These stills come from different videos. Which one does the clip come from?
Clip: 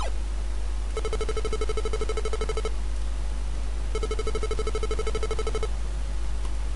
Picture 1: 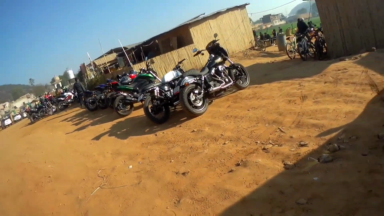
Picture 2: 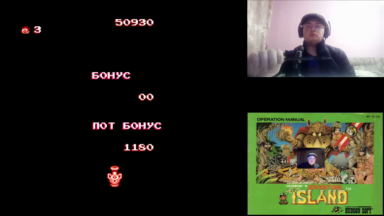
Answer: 2